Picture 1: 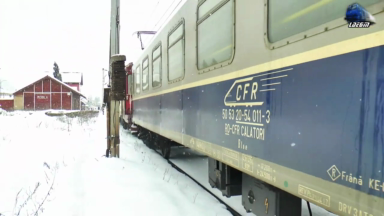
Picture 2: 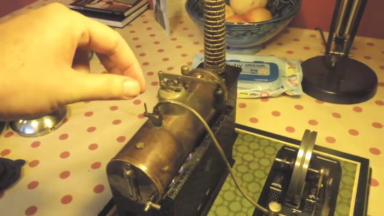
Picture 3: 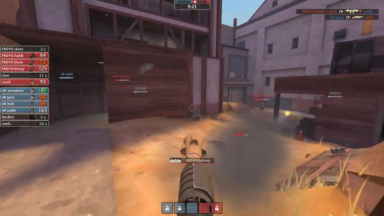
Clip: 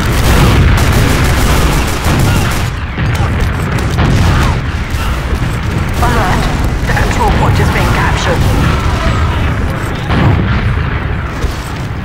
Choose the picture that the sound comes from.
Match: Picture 3